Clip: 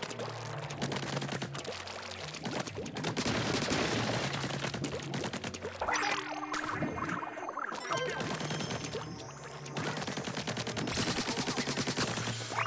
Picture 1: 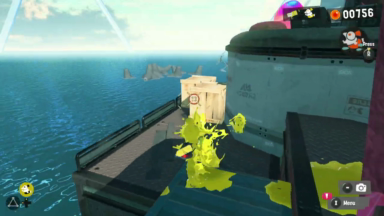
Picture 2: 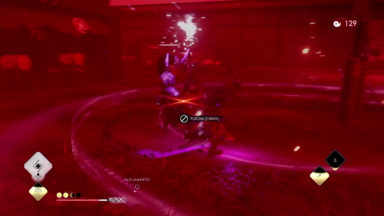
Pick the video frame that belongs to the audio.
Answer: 1